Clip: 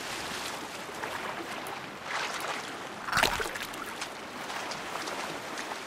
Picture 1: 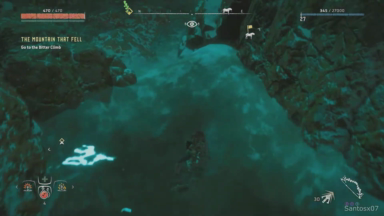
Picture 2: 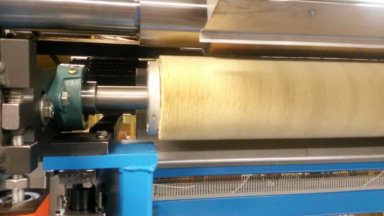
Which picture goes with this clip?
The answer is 1